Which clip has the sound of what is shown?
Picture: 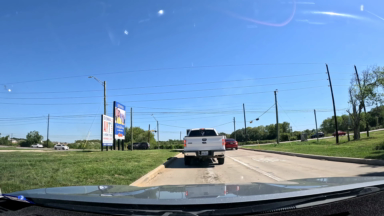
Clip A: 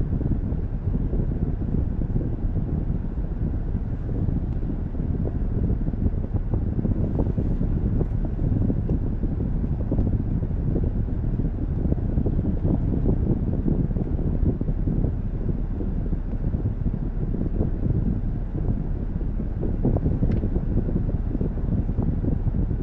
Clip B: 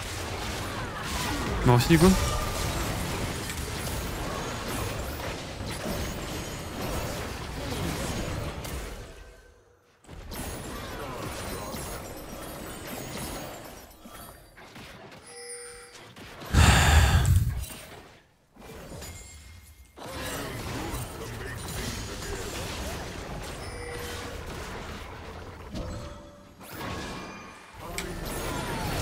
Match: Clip A